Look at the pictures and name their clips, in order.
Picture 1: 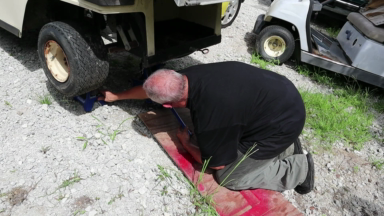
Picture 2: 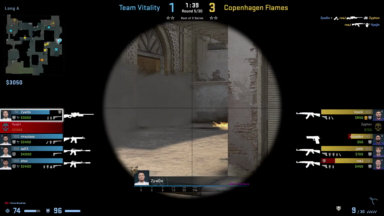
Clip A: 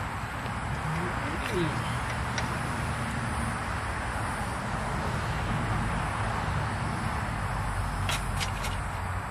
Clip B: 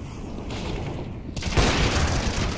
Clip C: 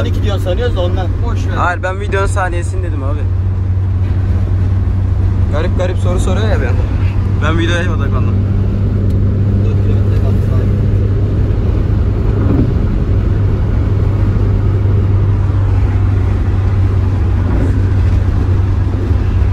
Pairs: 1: A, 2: B